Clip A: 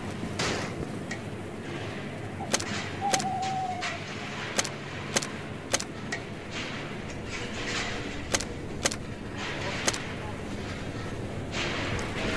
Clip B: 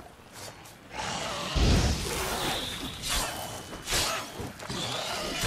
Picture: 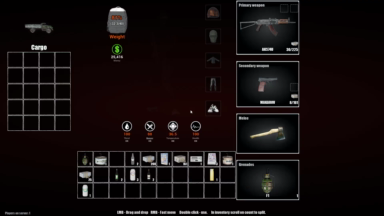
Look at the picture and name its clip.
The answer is A